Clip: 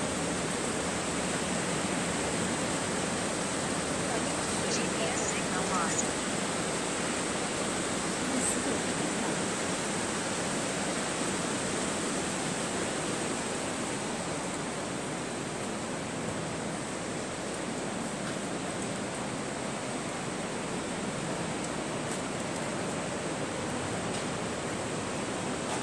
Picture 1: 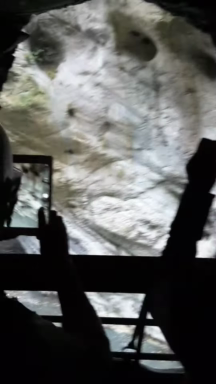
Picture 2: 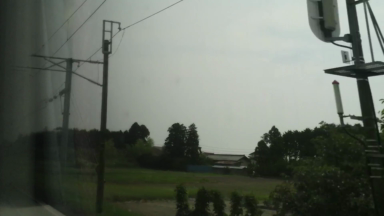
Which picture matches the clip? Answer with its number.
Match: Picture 1